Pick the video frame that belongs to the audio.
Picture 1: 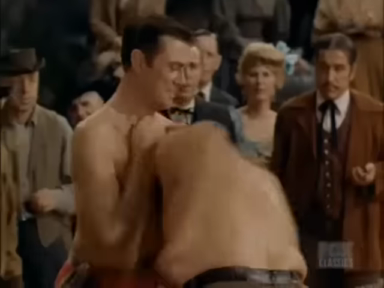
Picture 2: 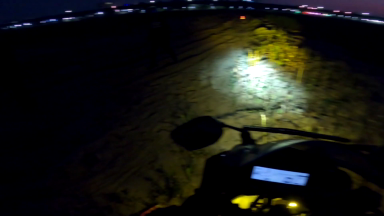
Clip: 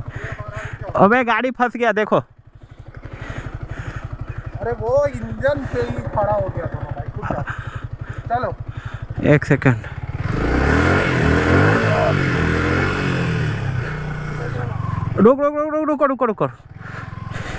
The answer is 2